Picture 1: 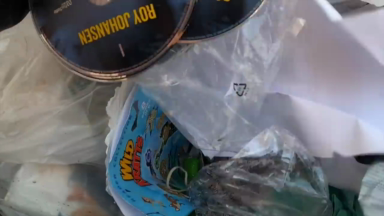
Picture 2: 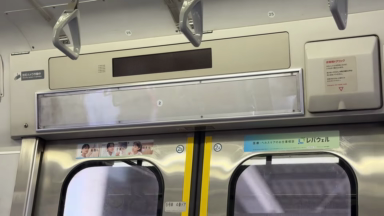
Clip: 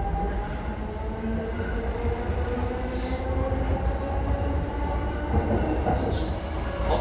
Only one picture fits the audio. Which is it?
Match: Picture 2